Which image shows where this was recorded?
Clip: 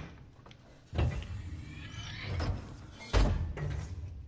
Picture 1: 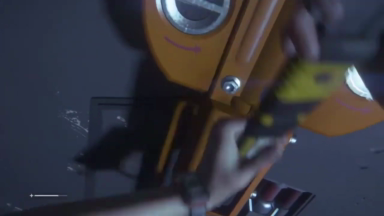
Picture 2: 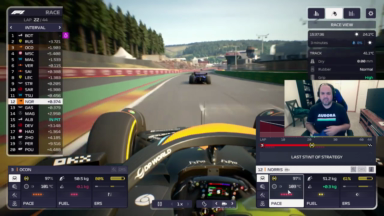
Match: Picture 1